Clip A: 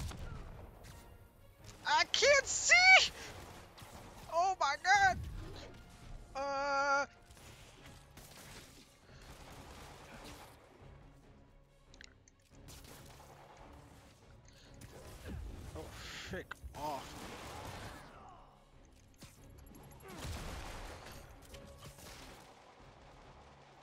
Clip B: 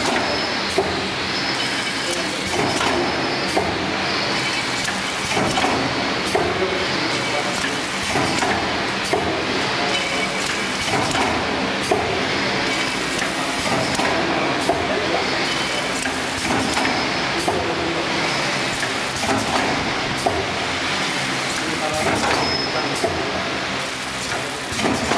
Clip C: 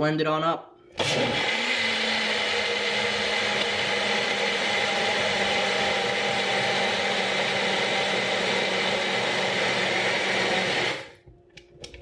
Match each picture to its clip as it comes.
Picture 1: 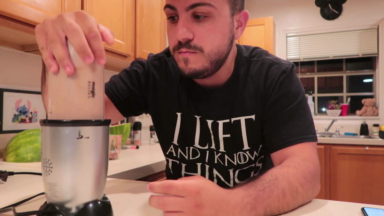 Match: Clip C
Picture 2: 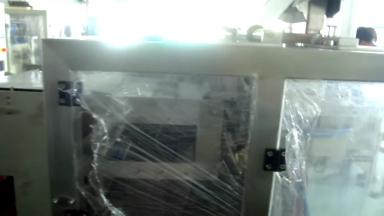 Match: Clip B